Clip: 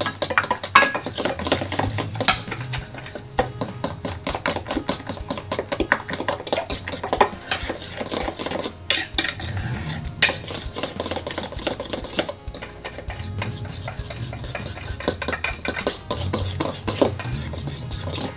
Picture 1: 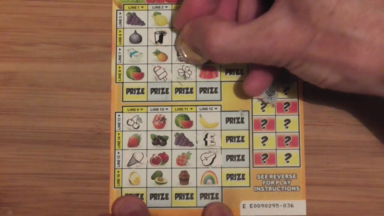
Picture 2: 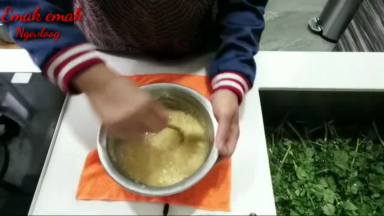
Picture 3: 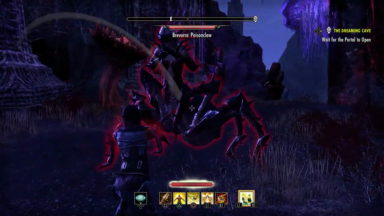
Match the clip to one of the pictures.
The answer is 2